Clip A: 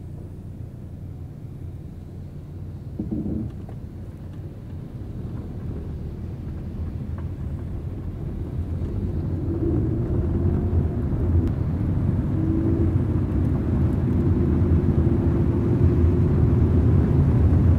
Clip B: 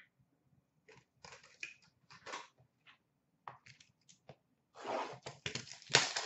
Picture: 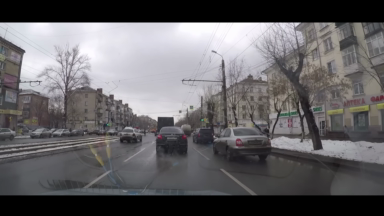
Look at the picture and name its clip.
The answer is A